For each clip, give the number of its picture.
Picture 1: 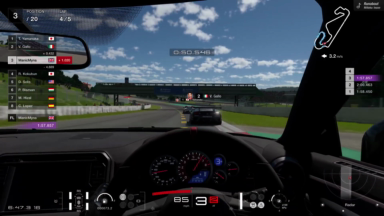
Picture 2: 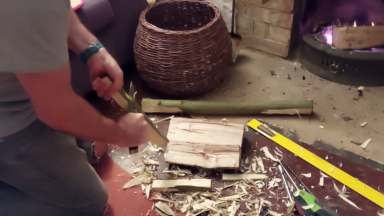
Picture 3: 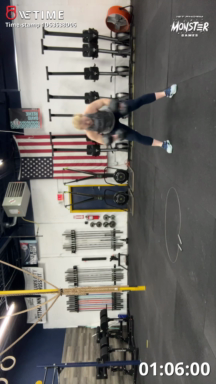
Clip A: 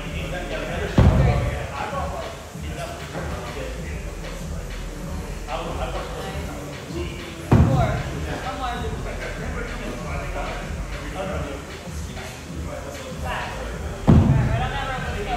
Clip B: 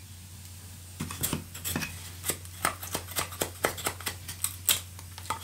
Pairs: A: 3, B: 2